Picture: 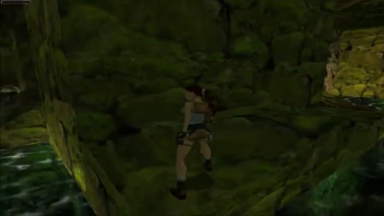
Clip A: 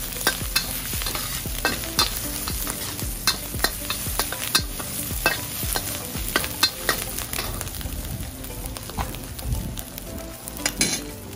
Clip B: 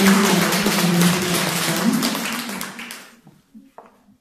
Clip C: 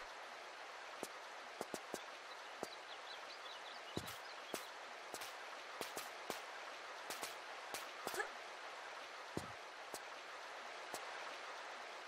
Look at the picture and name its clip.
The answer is C